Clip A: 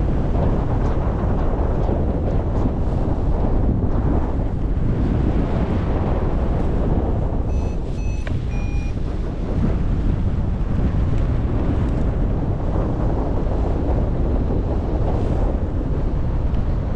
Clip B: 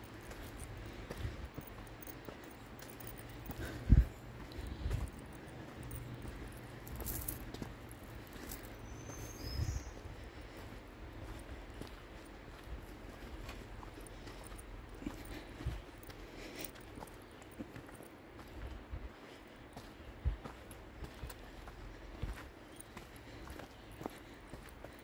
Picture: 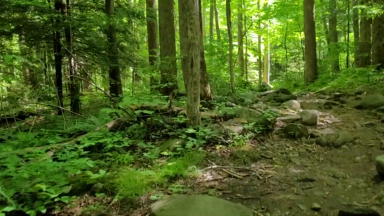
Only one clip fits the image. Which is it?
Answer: B